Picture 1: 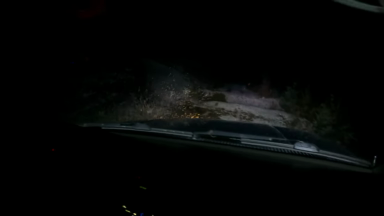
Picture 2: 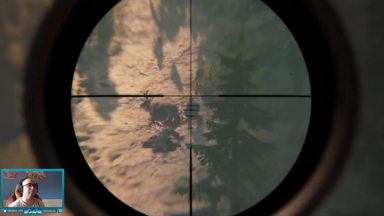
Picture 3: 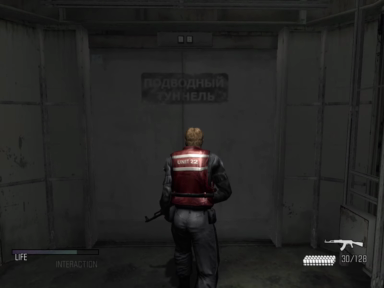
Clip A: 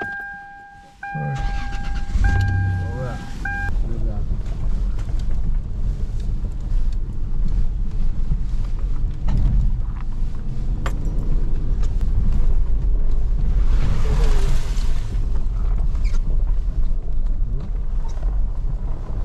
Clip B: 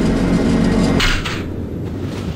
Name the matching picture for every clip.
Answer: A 1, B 3